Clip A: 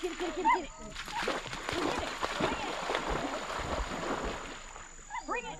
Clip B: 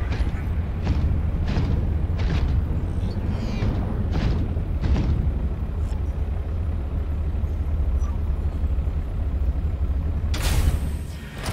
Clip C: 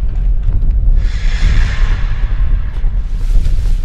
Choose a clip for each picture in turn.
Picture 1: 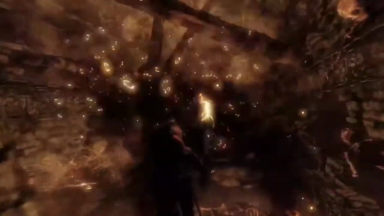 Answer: C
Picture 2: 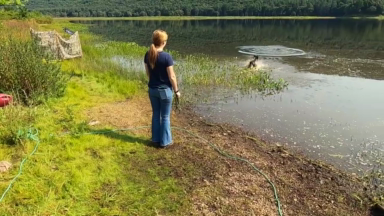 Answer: A